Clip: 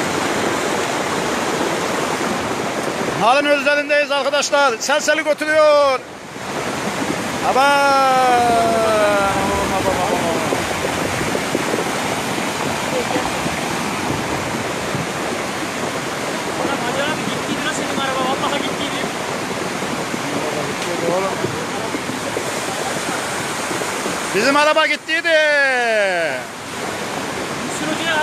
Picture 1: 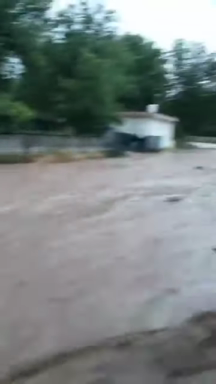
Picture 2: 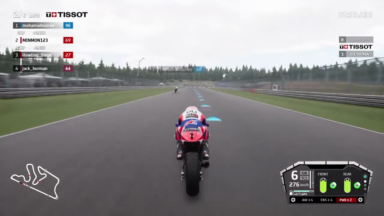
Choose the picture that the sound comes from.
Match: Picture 1